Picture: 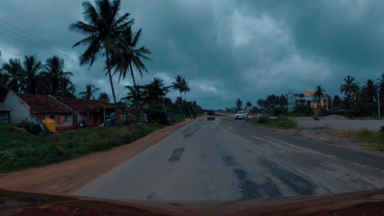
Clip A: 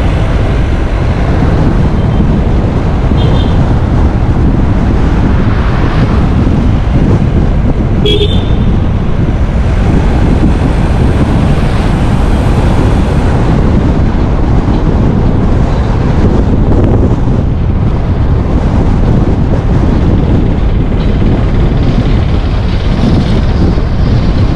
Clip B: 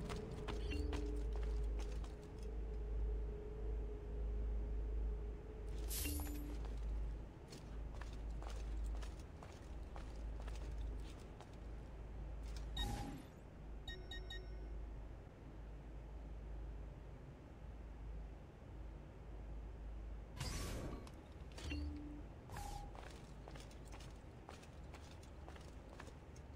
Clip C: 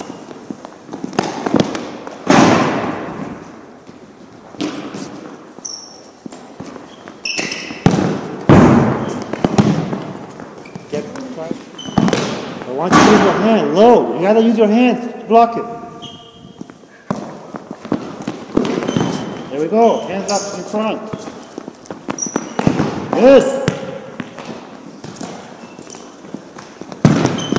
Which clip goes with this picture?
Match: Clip A